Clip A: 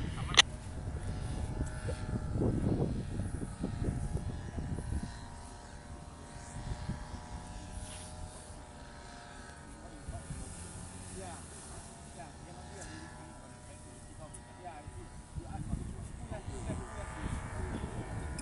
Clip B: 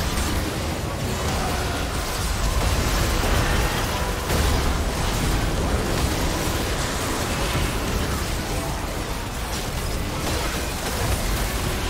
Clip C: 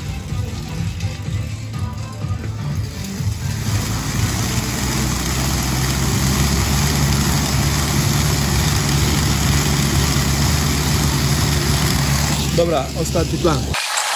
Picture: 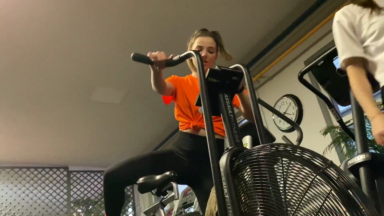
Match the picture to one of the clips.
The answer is C